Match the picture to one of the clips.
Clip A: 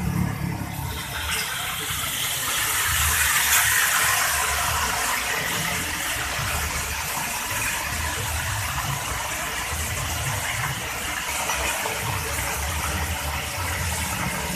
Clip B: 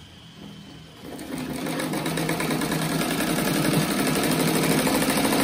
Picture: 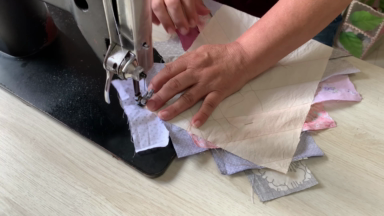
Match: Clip B